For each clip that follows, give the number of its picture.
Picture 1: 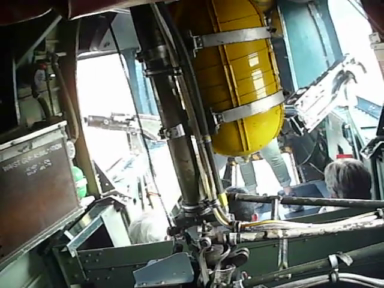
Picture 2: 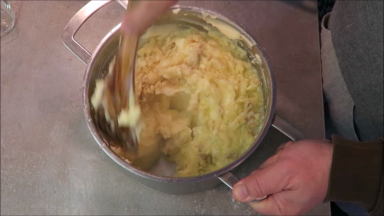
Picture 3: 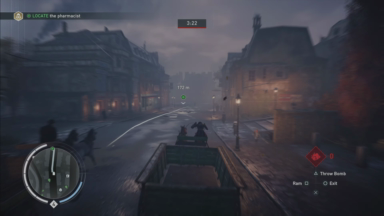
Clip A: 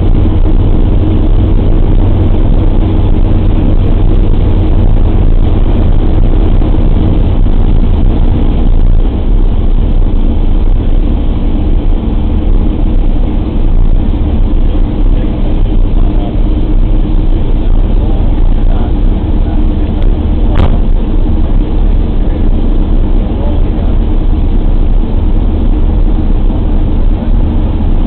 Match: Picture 1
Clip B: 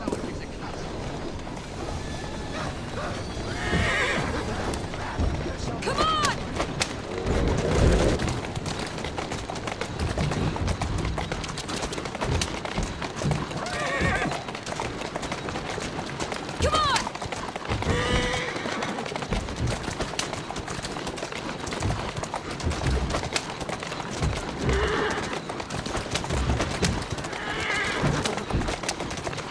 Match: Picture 3